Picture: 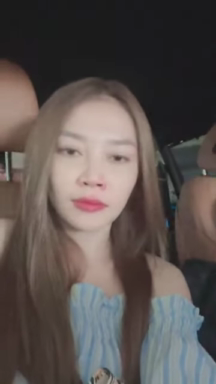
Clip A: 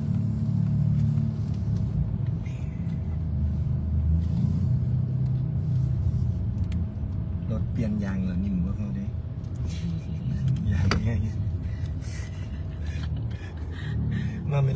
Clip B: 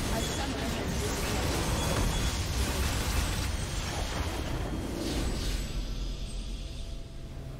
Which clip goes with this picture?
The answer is A